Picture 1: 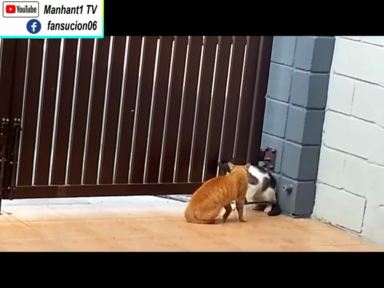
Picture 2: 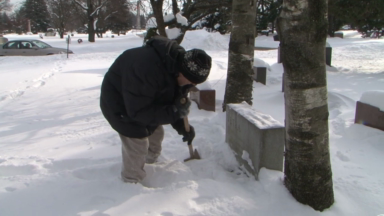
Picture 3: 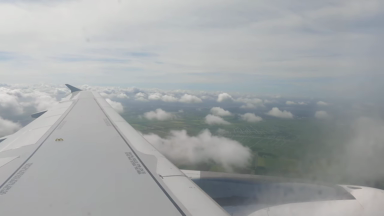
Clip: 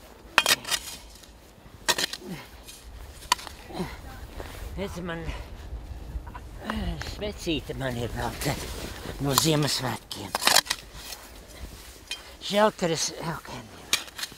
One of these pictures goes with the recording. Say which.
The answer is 2